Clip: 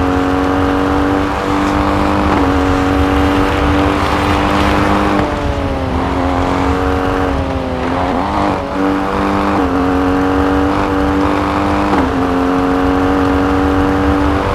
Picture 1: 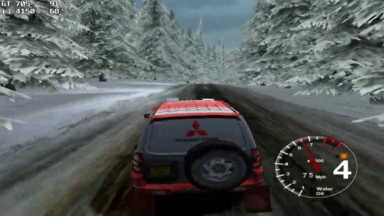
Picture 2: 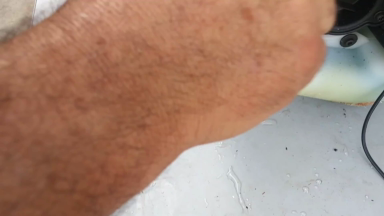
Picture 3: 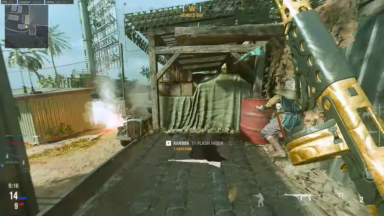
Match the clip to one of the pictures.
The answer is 1